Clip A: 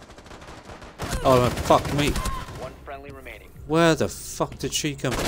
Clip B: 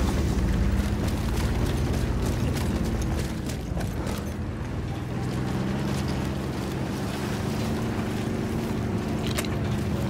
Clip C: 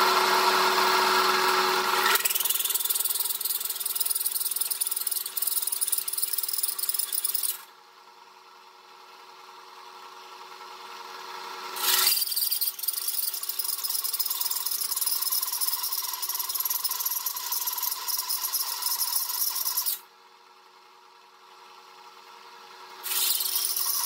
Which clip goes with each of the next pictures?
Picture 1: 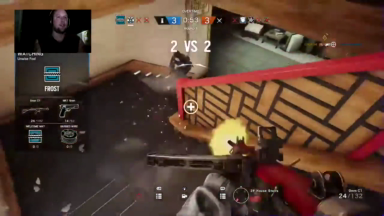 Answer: A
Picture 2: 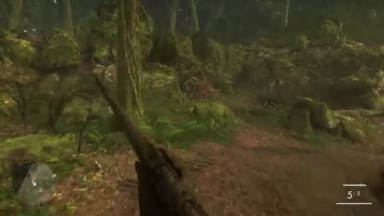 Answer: B